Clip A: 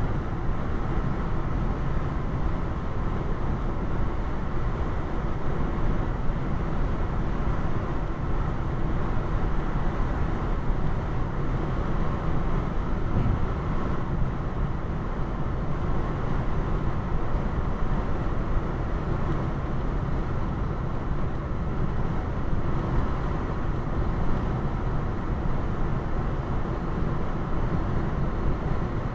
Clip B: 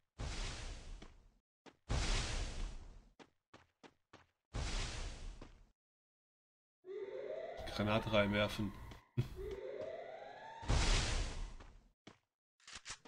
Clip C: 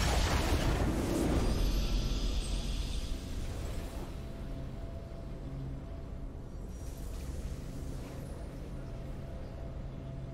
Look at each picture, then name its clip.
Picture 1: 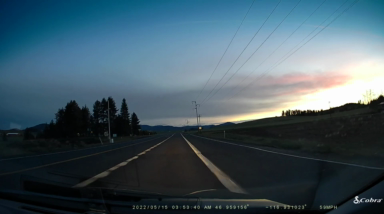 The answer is A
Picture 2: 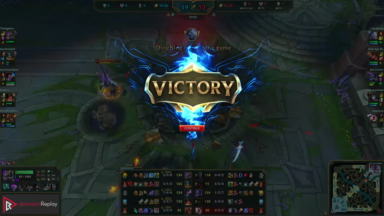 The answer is C